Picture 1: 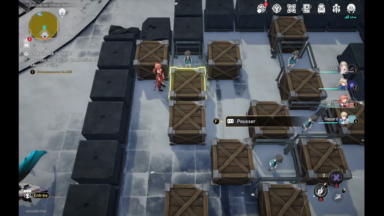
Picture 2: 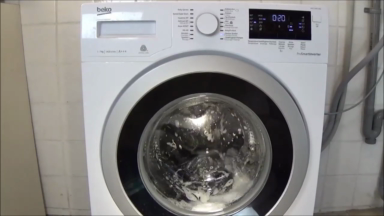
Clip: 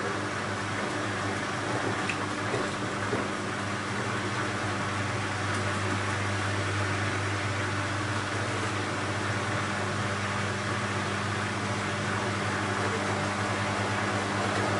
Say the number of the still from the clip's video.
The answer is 2